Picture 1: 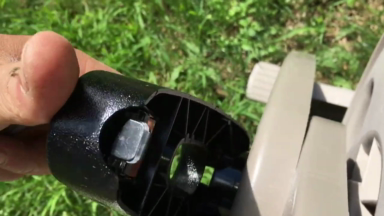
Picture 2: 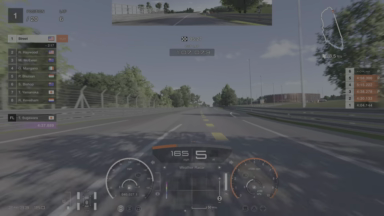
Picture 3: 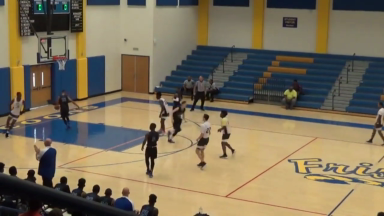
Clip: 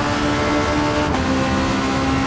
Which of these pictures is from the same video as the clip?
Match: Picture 2